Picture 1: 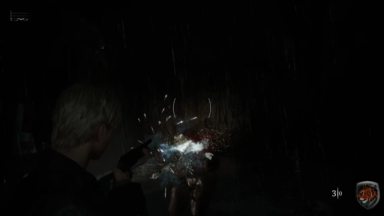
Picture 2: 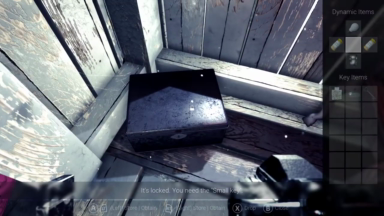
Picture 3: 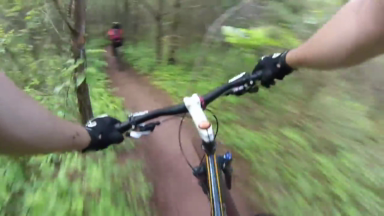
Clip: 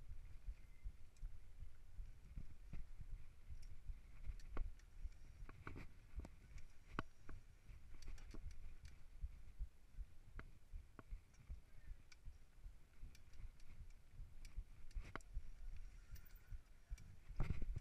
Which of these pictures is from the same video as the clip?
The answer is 3